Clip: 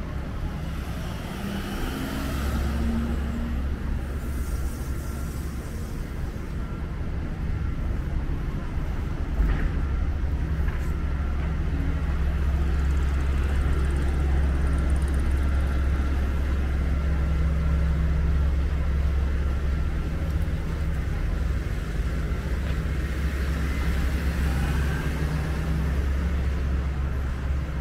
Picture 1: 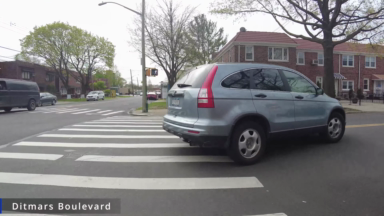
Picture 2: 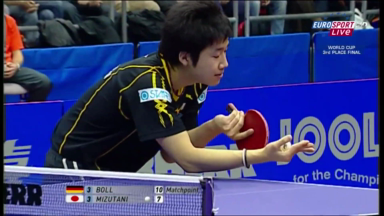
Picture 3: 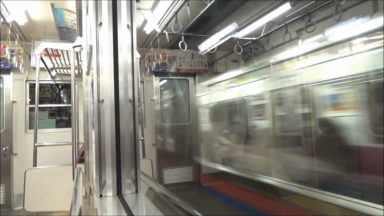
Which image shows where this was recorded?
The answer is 1